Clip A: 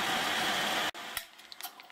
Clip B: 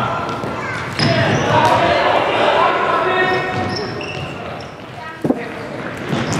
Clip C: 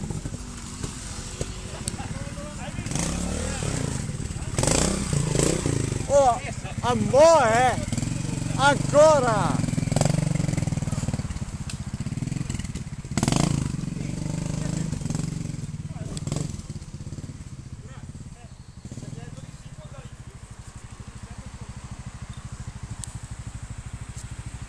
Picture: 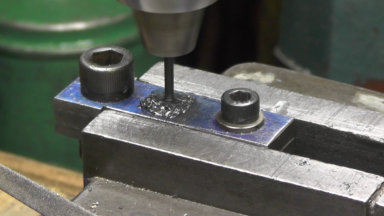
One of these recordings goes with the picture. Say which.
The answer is A